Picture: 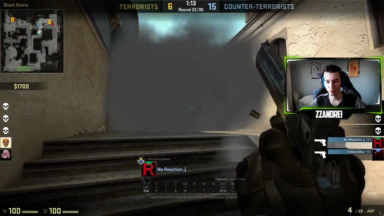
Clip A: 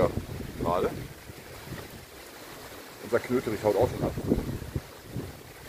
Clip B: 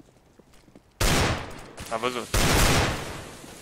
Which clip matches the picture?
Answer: B